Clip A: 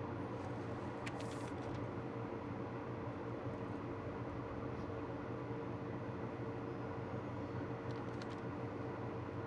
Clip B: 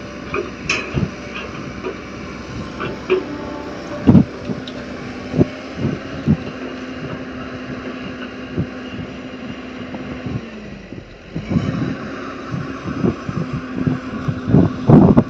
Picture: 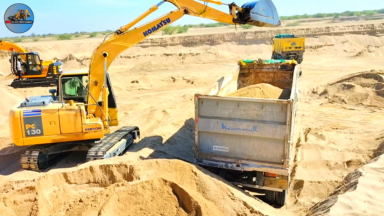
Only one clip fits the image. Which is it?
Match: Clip B